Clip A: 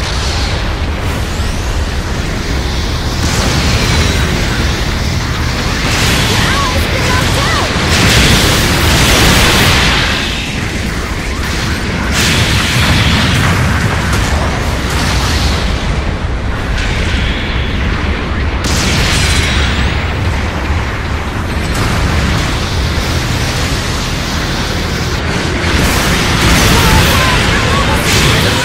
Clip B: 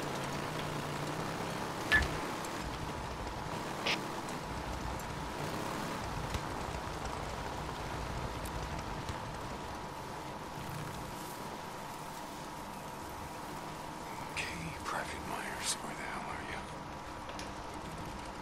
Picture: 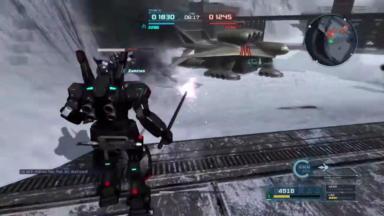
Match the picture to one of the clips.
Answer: A